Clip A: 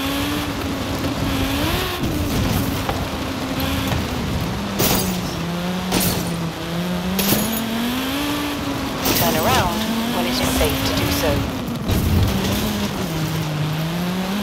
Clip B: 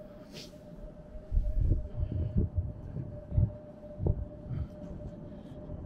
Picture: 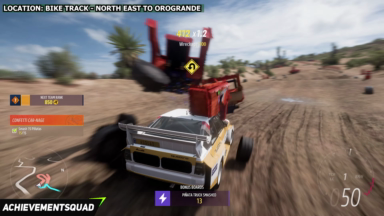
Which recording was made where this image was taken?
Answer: A